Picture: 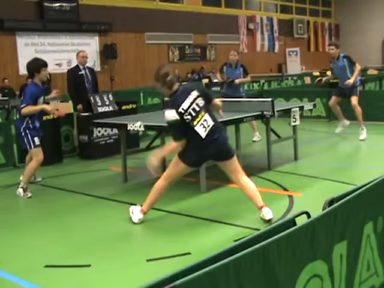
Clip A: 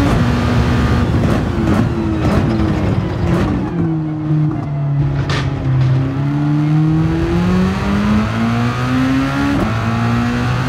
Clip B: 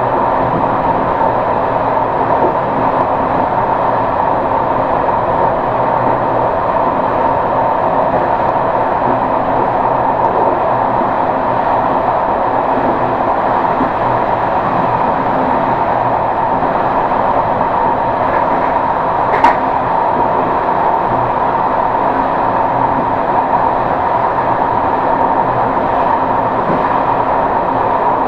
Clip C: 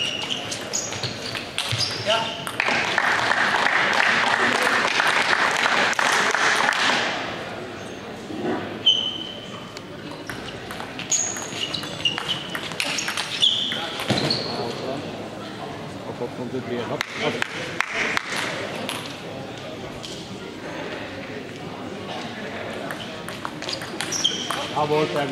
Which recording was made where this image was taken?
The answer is C